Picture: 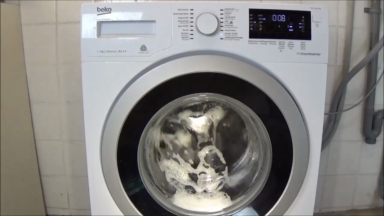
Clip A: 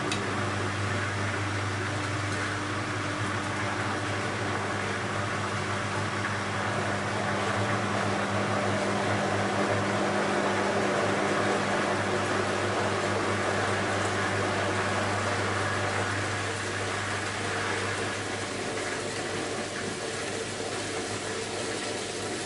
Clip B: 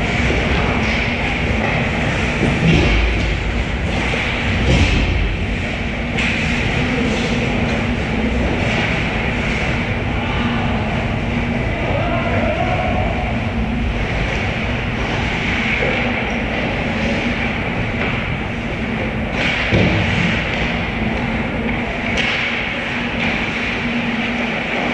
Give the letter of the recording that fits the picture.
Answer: A